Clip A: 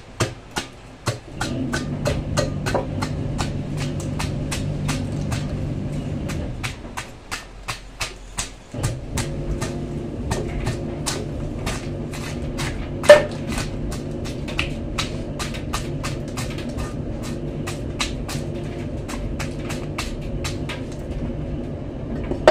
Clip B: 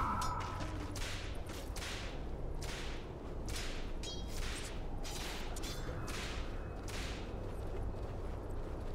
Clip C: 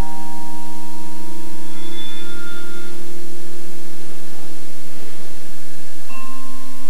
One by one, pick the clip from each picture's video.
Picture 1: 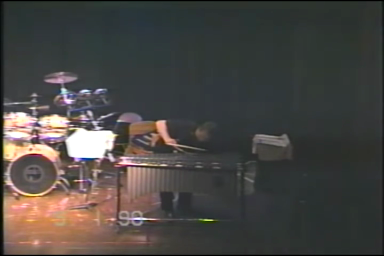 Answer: C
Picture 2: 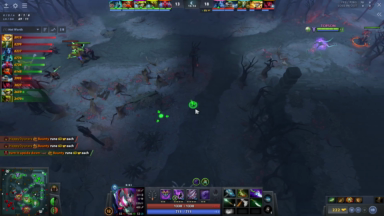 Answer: B